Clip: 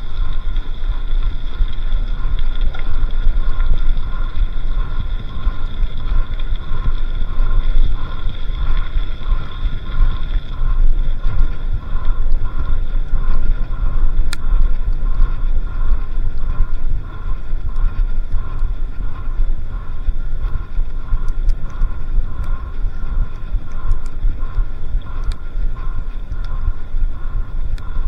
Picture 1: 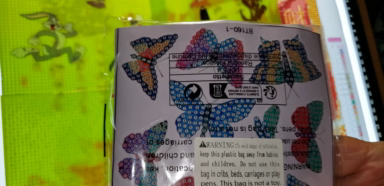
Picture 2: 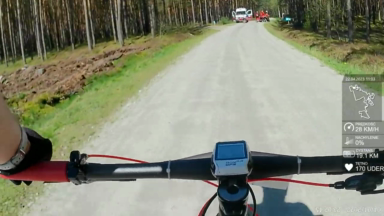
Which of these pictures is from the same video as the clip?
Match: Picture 2